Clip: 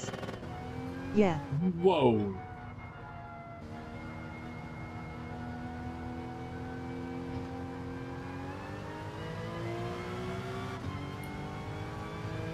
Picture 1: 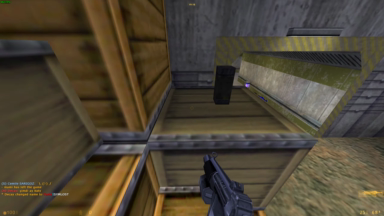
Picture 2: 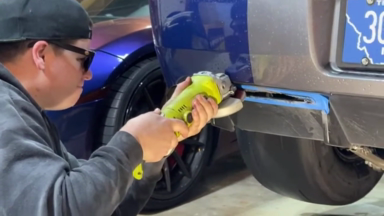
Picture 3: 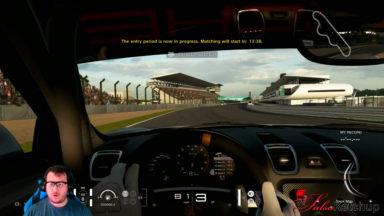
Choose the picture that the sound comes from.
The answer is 3